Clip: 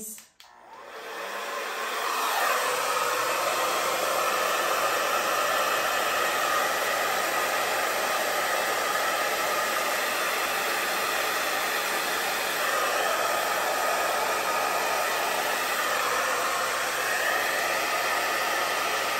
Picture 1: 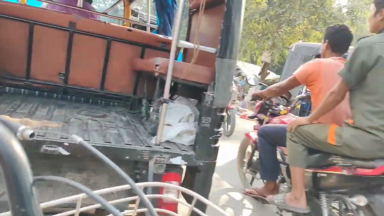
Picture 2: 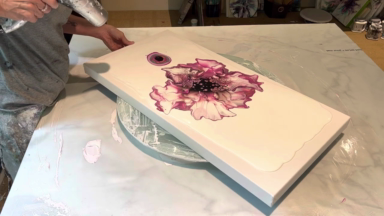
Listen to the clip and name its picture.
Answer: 2